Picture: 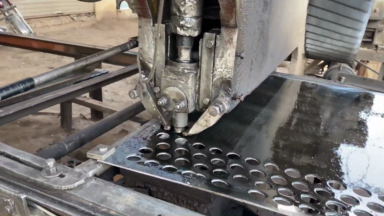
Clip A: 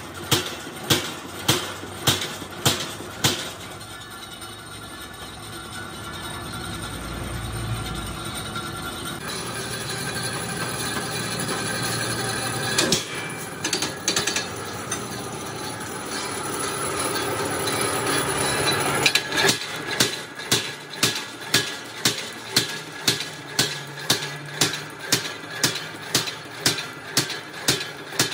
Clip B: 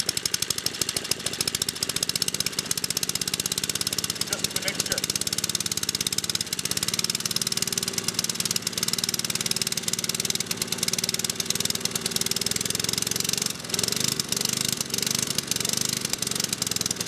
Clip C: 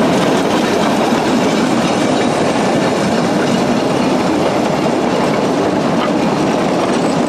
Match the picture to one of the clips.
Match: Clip A